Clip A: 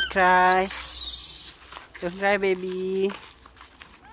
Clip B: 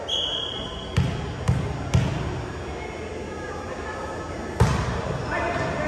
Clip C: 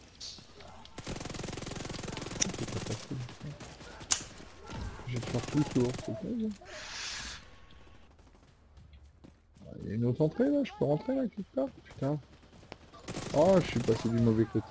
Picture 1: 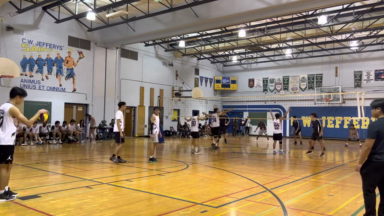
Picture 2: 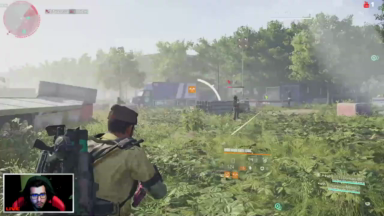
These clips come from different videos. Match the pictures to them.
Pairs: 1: B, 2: C